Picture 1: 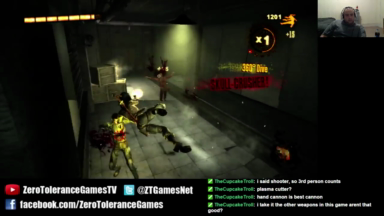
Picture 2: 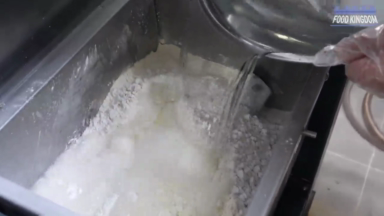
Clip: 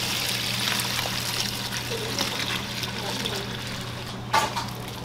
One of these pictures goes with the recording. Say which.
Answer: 2